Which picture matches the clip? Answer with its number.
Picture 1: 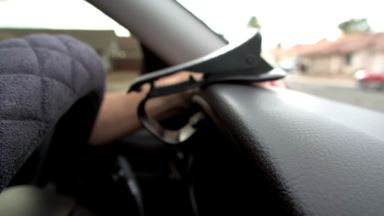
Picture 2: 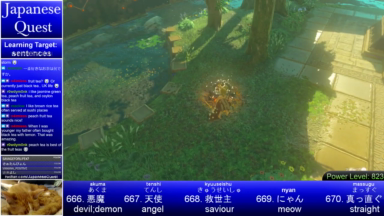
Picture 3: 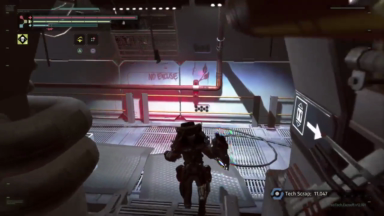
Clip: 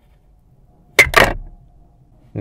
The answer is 1